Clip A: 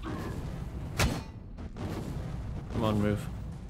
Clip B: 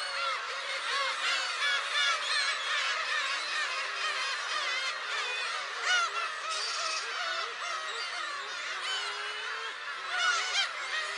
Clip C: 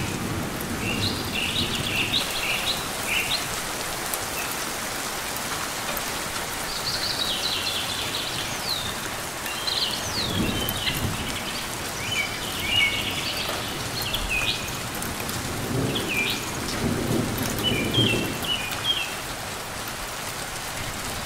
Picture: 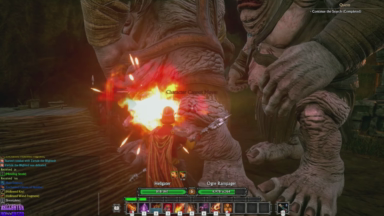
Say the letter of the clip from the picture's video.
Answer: A